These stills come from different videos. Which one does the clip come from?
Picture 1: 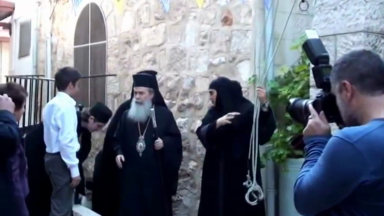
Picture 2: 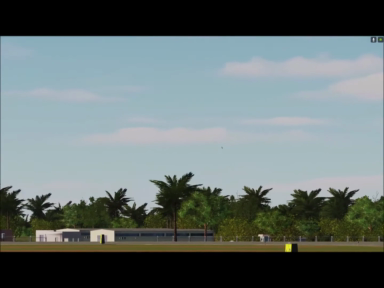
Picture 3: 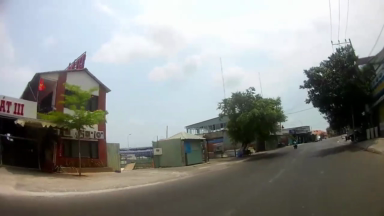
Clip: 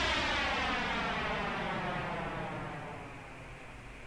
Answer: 2